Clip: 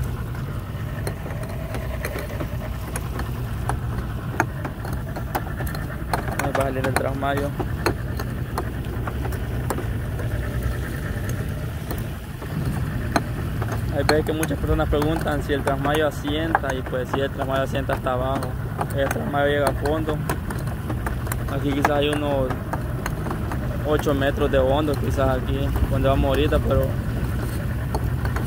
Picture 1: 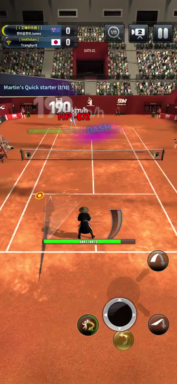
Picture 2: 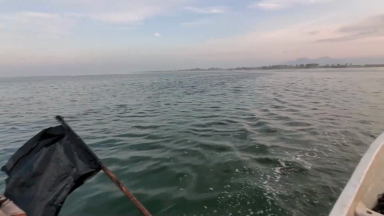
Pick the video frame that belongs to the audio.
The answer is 2